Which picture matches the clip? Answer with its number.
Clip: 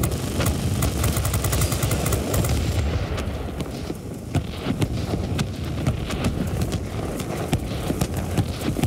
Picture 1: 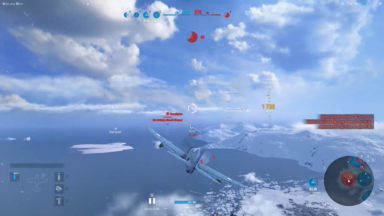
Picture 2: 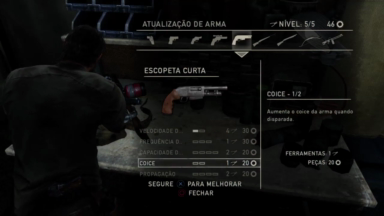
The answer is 1